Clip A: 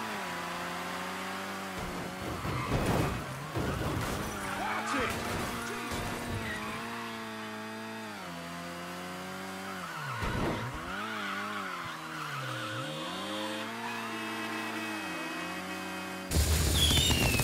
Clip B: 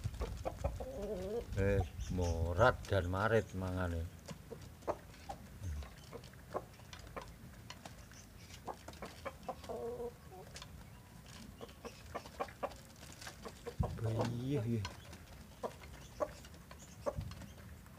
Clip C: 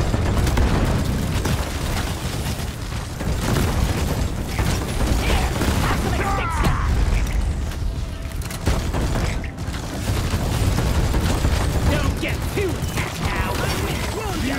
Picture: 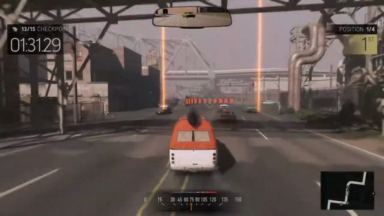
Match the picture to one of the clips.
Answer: A